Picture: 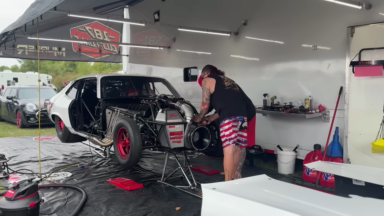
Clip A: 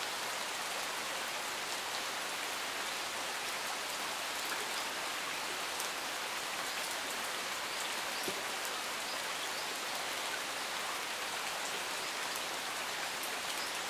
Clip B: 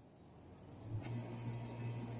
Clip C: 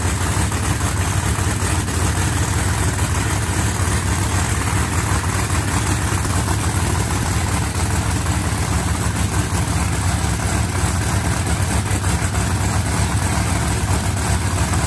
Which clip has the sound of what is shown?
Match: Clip C